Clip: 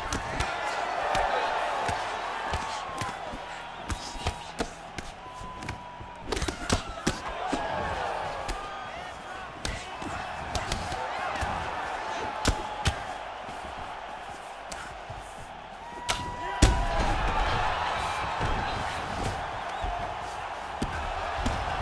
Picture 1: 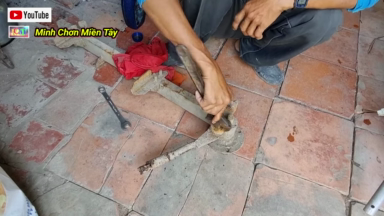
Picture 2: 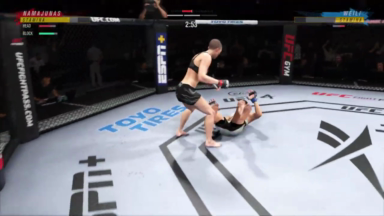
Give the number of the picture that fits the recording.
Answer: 2